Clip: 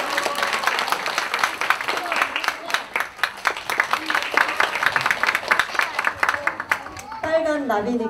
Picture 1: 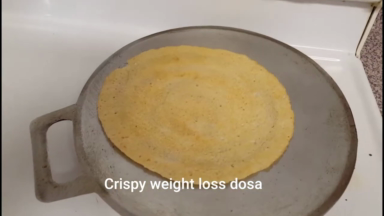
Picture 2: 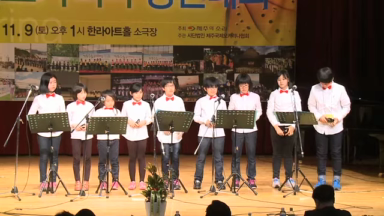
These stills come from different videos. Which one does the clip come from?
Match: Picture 2